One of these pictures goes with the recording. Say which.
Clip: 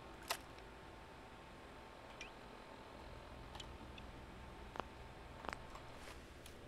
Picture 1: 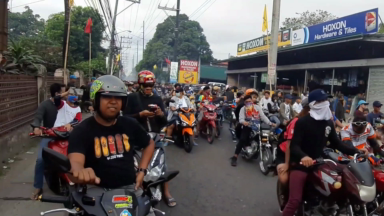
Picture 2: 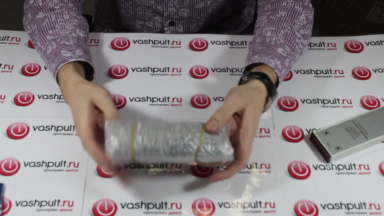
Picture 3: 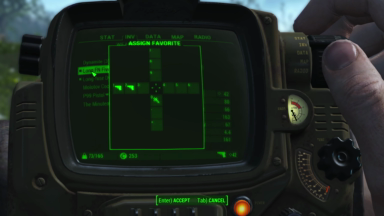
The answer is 3